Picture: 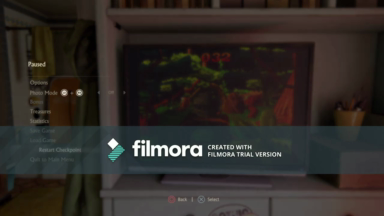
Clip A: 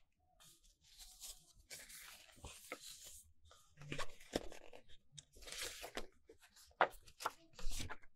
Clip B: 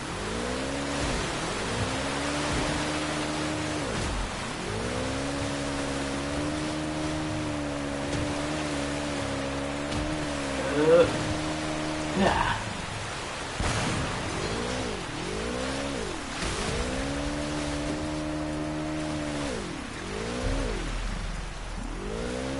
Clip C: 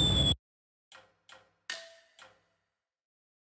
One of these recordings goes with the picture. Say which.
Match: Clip C